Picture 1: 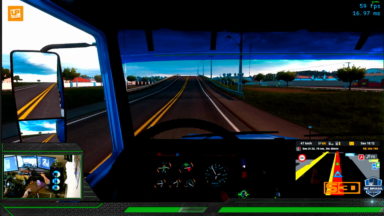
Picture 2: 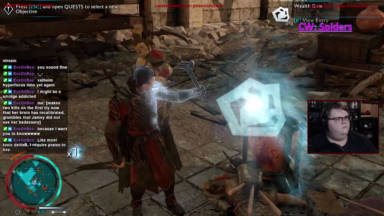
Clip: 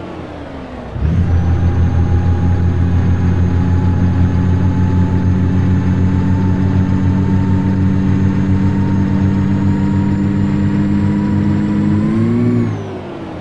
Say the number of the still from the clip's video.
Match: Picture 1